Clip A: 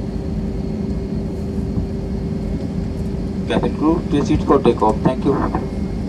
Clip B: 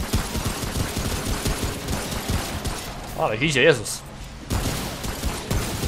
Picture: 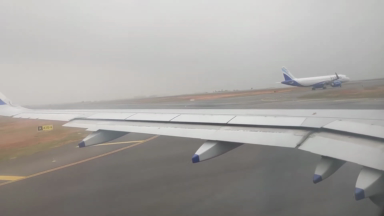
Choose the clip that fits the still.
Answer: A